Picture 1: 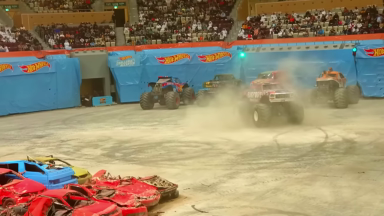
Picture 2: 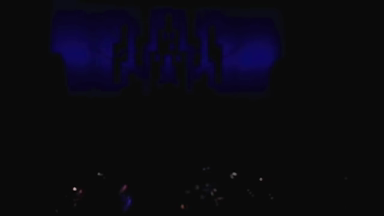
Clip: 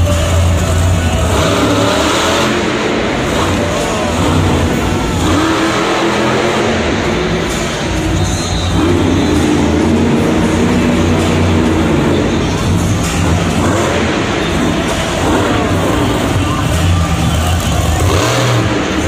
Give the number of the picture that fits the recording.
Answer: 1